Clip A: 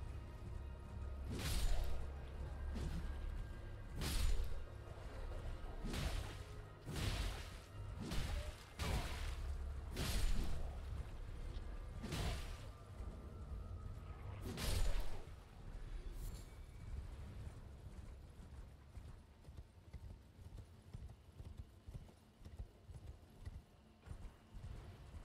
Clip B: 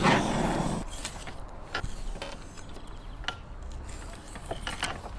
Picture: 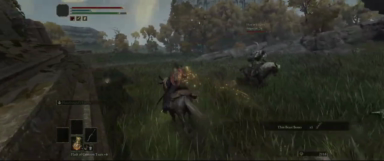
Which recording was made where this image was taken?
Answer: A